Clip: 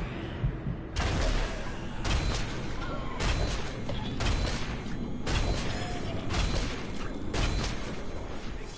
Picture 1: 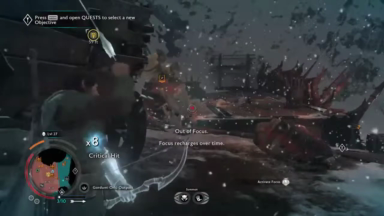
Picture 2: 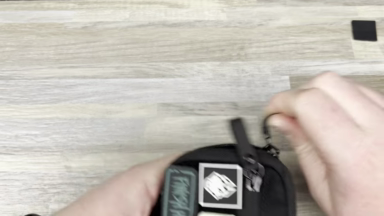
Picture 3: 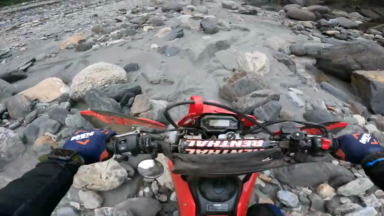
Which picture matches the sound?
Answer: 1